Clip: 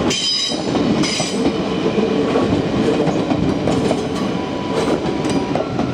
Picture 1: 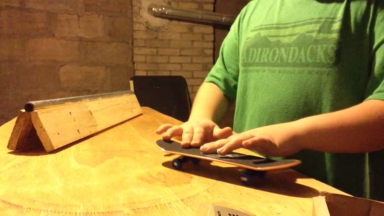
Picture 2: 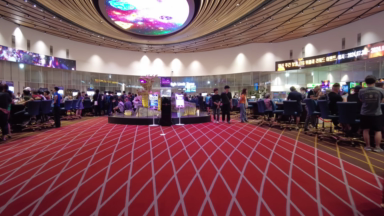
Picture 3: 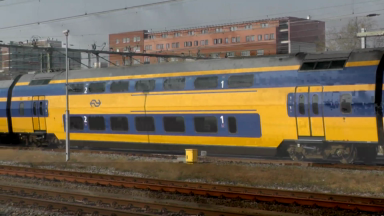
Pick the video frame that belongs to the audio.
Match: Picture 3